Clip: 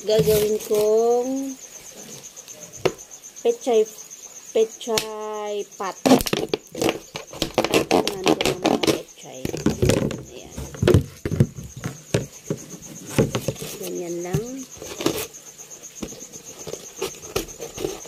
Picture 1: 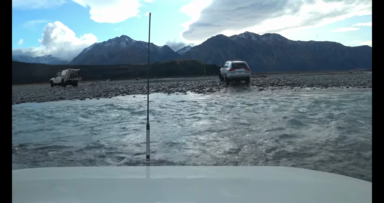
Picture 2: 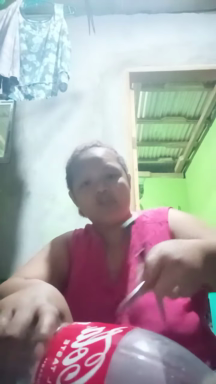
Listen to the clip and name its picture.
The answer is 2